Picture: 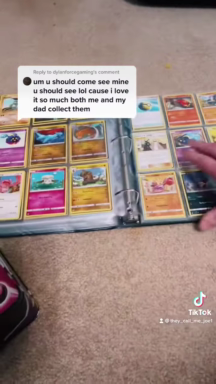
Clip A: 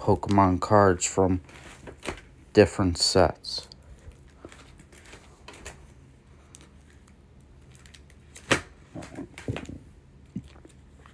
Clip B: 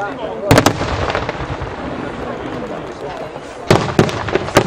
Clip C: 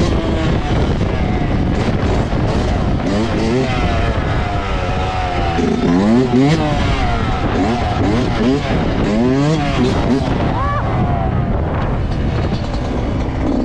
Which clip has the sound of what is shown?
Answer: A